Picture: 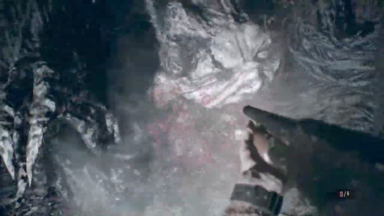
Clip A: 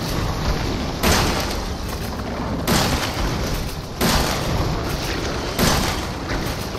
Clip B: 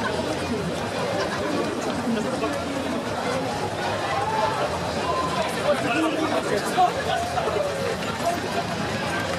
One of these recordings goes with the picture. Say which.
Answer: A